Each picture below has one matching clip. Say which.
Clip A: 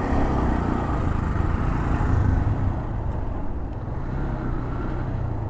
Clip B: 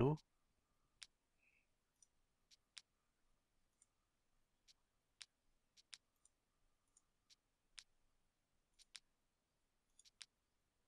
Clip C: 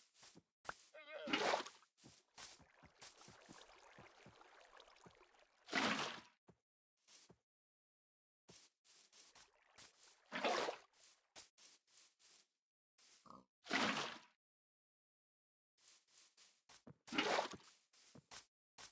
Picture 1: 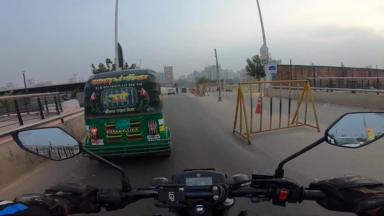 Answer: A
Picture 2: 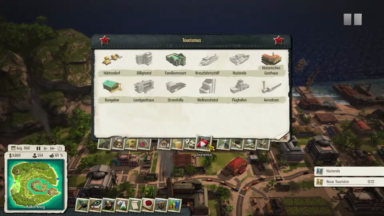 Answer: B